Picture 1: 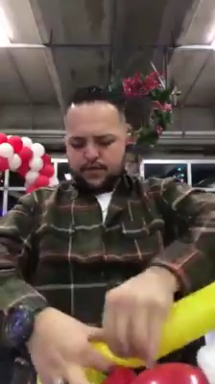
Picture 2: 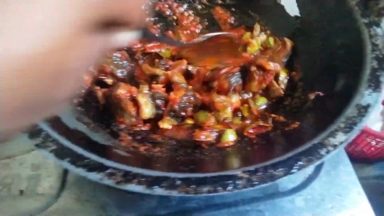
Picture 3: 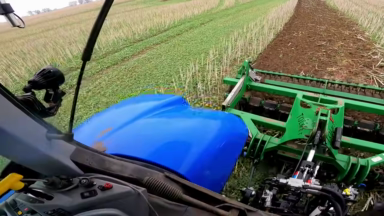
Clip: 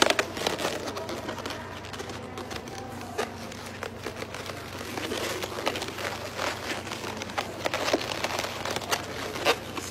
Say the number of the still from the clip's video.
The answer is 1